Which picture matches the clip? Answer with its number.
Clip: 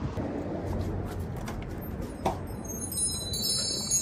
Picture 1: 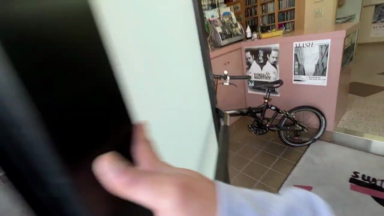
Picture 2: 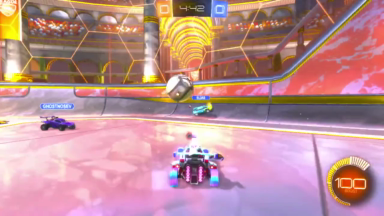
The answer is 1